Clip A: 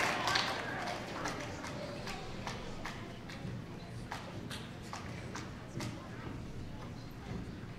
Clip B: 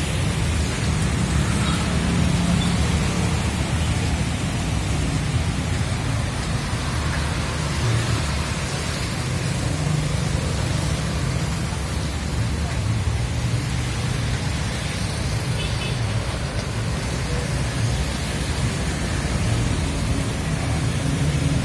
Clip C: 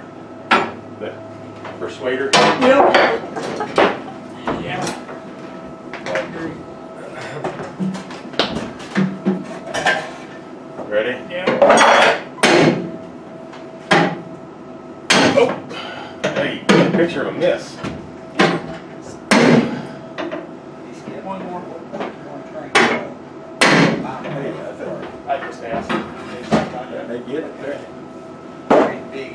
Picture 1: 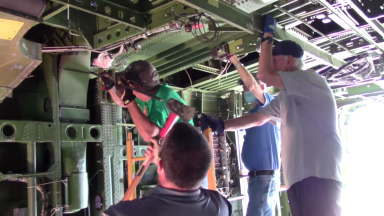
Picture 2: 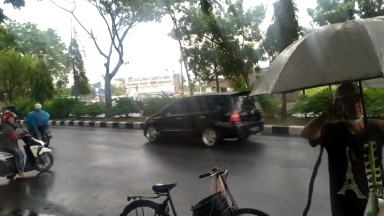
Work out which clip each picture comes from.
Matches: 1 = C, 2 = B